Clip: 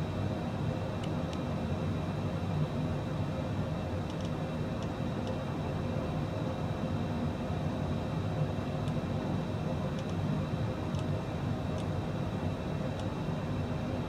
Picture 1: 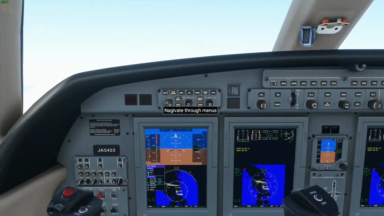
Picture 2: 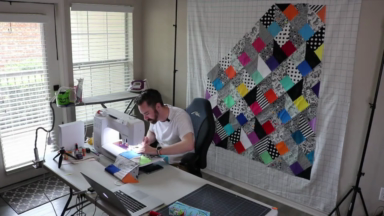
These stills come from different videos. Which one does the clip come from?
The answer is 1